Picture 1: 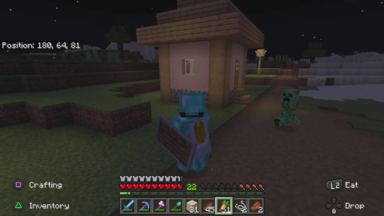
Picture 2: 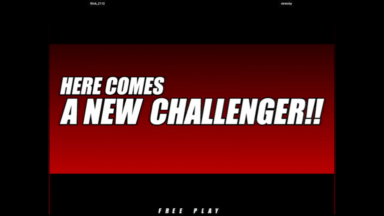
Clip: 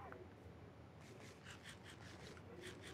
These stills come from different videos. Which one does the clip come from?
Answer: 1